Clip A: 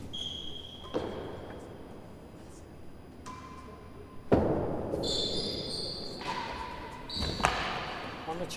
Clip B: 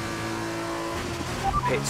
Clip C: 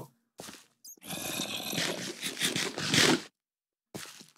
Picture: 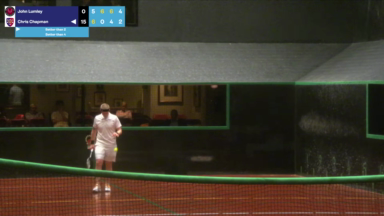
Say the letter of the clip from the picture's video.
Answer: A